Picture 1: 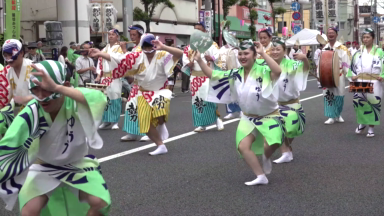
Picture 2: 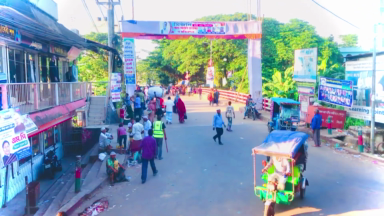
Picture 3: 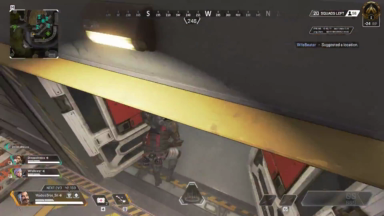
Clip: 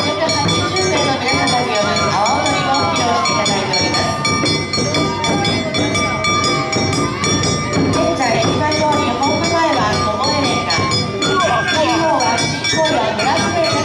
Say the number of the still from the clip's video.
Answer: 1